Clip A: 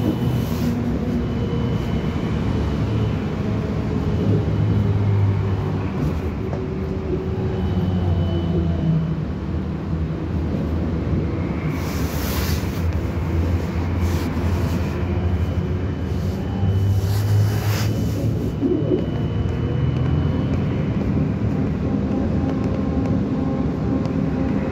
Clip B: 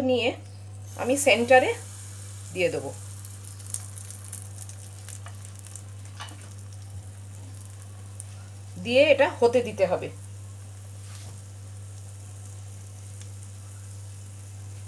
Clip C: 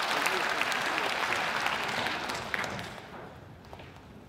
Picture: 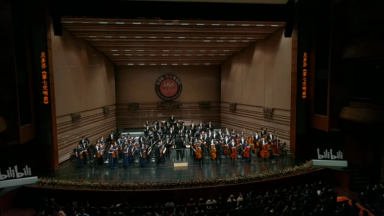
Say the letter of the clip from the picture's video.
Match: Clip C